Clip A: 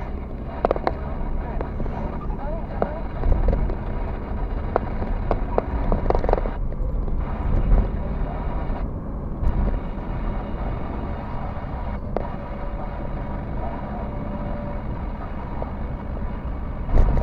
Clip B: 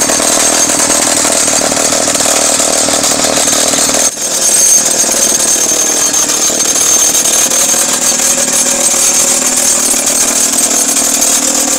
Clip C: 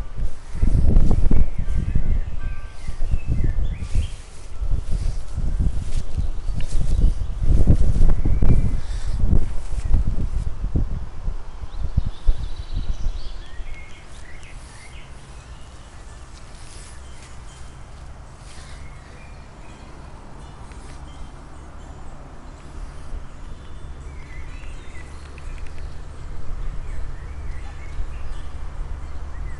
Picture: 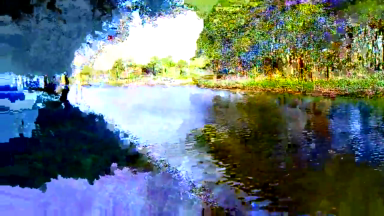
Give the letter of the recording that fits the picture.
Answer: C